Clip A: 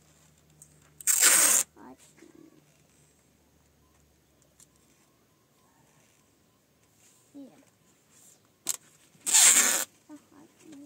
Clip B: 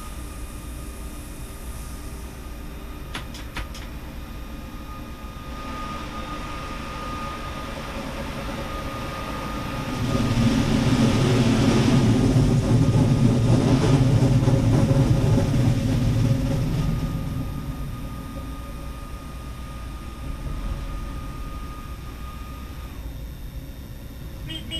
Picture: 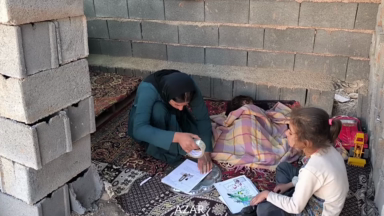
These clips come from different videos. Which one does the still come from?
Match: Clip A